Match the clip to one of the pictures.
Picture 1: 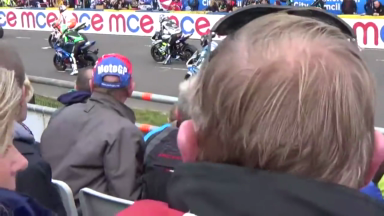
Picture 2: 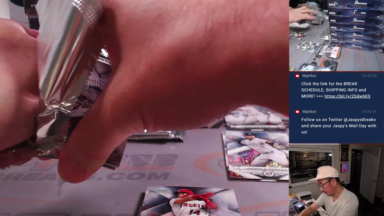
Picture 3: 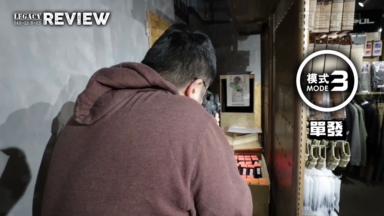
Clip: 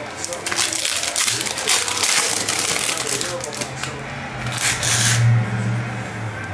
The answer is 2